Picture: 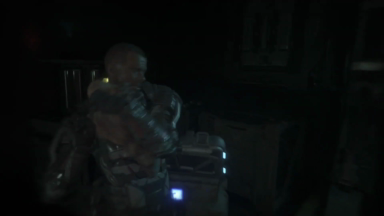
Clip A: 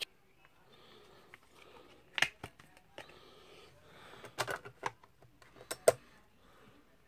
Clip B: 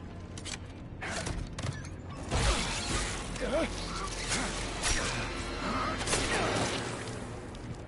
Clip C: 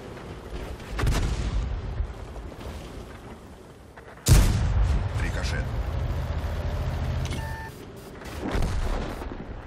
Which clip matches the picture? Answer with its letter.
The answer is B